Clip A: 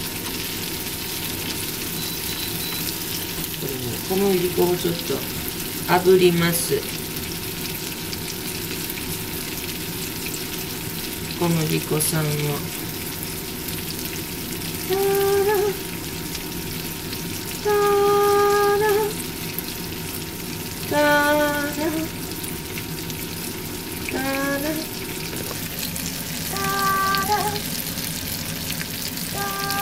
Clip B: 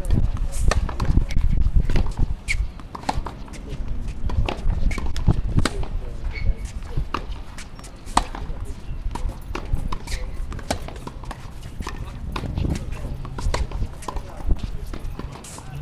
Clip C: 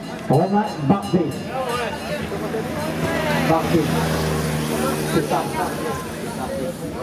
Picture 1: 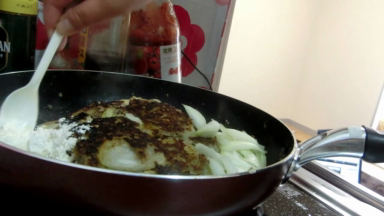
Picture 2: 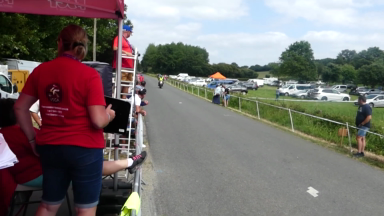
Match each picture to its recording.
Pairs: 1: A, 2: C